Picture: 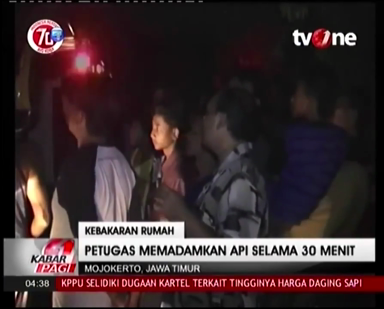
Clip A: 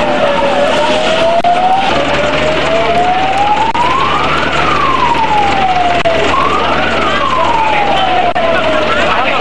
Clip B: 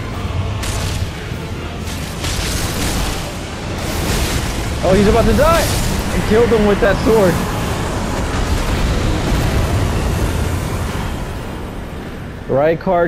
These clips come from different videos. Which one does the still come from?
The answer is A